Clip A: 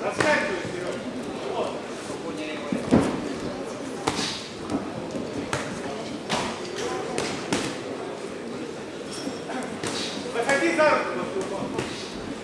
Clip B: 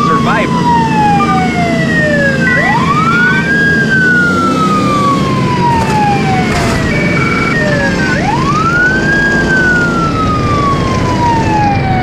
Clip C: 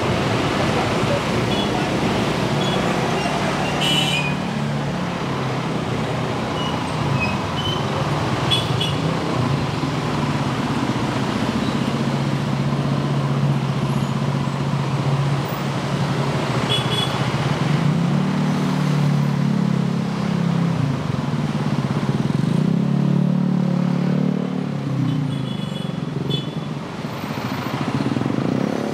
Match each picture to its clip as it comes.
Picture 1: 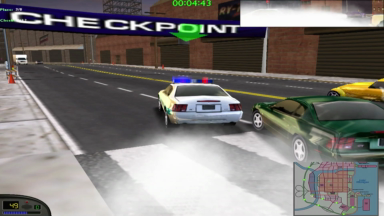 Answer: B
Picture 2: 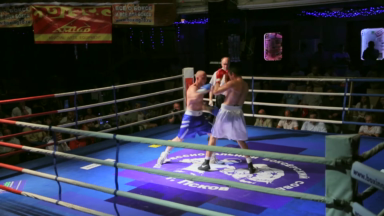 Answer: A